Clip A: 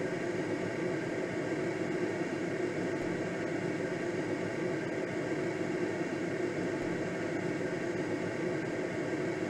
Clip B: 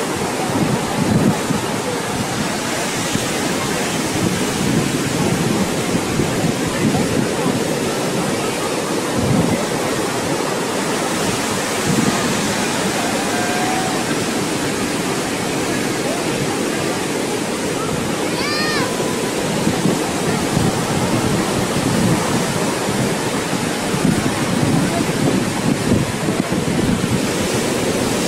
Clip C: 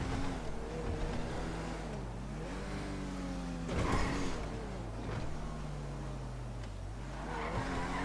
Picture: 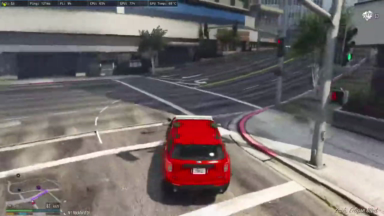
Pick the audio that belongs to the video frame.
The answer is C